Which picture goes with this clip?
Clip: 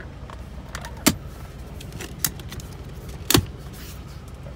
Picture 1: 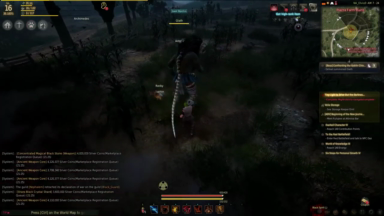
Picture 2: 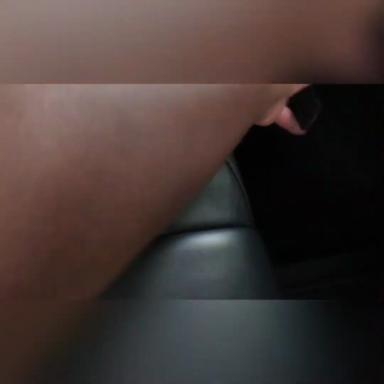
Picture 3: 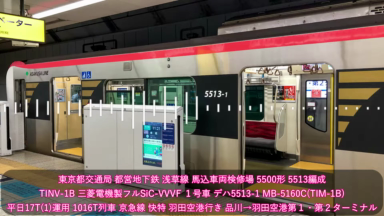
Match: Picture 2